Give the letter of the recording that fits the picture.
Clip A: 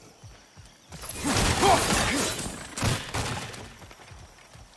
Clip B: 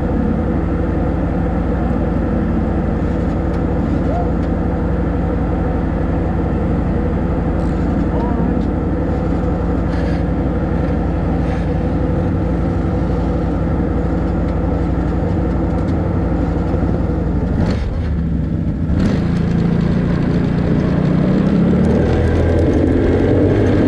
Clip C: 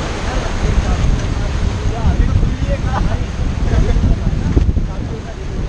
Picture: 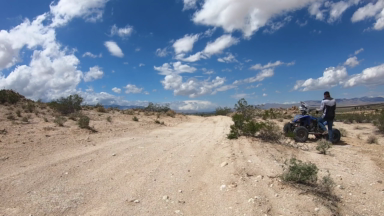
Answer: B